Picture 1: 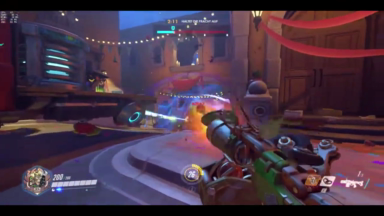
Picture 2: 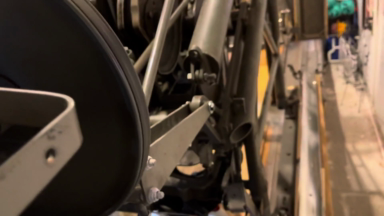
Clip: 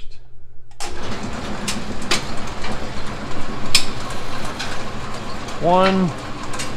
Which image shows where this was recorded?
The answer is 2